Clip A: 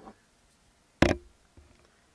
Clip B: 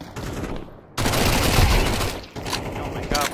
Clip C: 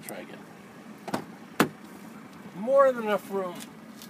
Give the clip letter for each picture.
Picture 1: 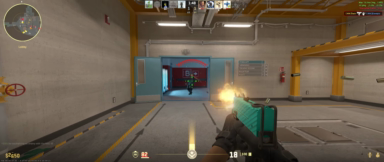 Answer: B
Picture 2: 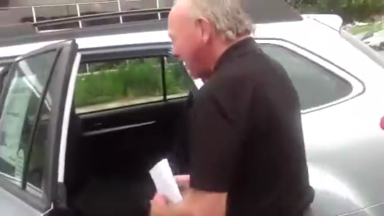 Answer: C